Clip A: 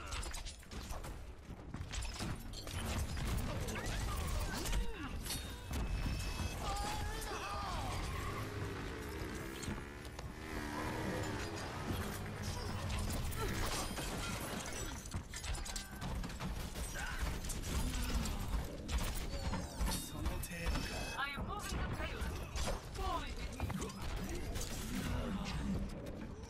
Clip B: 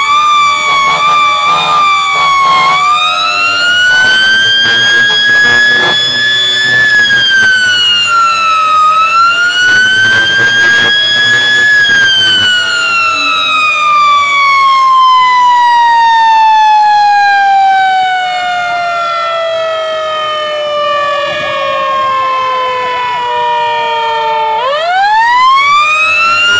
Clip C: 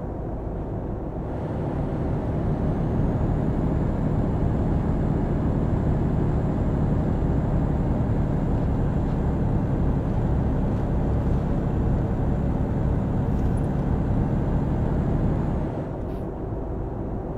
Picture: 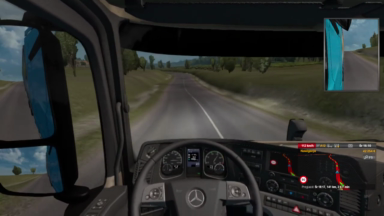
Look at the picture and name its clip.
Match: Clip C